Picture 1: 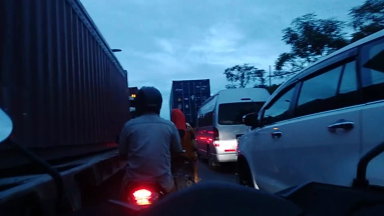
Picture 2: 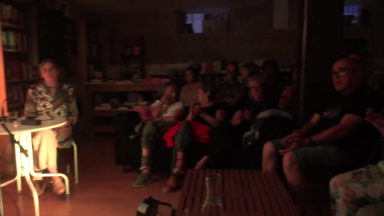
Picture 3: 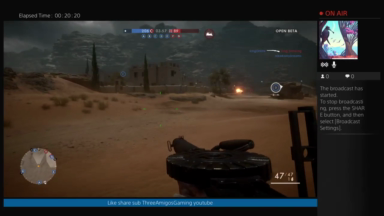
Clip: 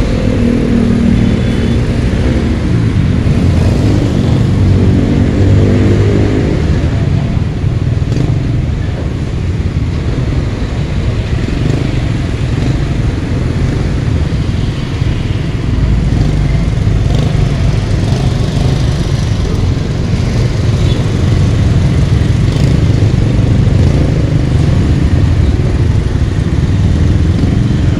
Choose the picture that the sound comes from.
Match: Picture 1